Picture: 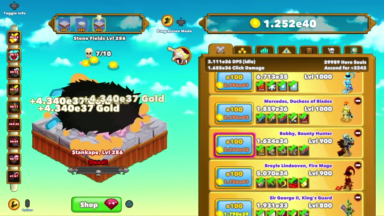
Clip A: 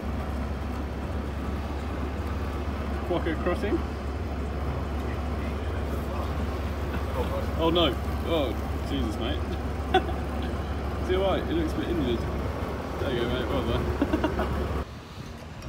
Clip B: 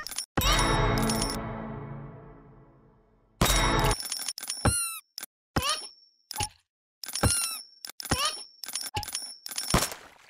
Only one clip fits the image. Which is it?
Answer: B